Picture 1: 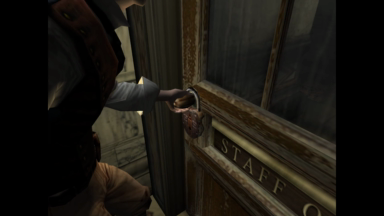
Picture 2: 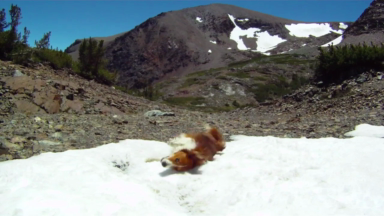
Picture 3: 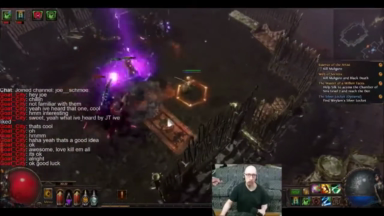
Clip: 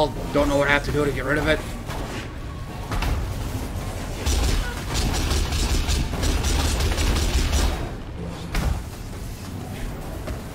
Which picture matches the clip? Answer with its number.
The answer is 3